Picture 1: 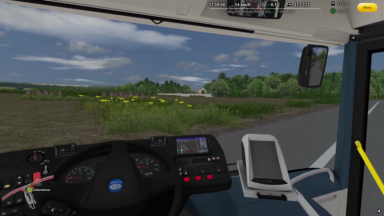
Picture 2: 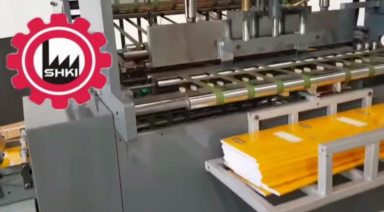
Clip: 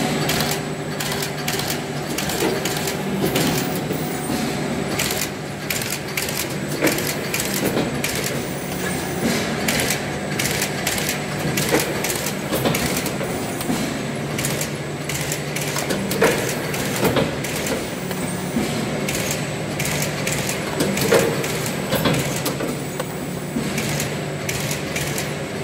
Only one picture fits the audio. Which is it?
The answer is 2